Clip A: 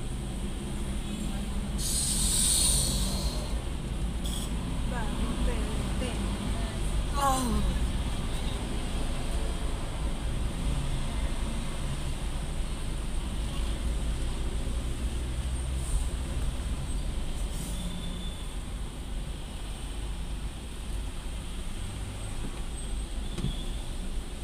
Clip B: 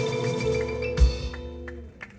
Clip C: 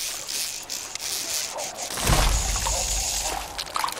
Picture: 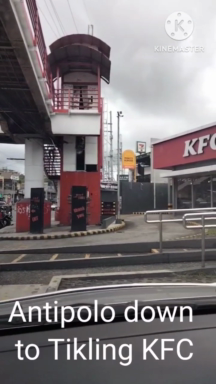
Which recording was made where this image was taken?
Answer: A